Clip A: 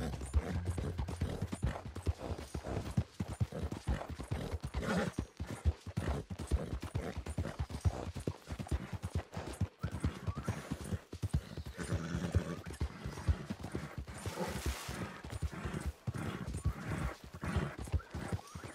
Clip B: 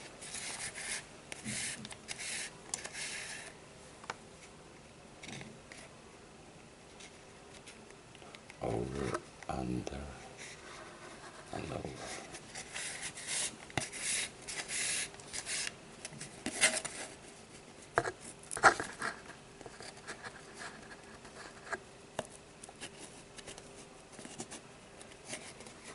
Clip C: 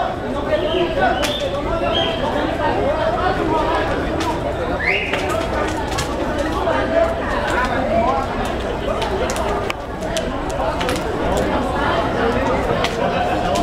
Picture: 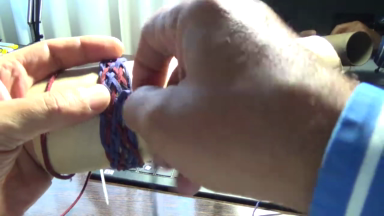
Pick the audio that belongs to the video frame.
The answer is B